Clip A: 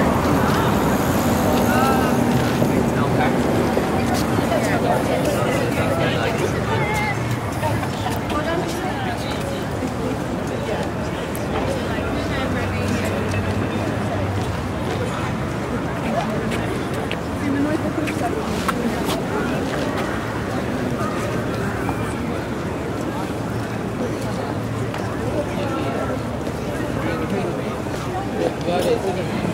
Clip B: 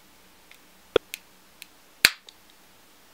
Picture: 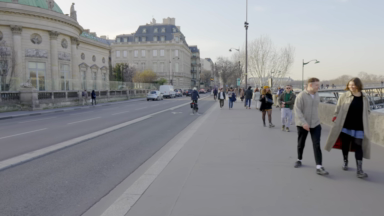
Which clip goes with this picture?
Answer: A